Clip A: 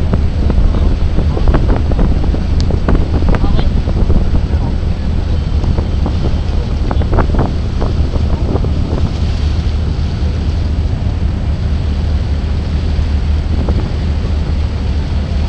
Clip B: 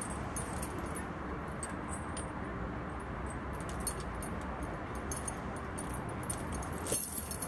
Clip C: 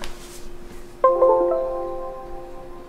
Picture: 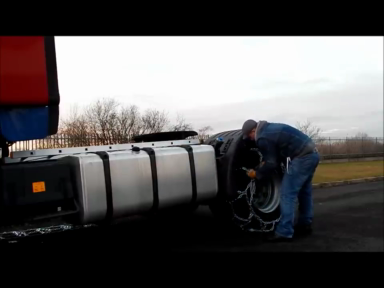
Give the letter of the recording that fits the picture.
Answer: B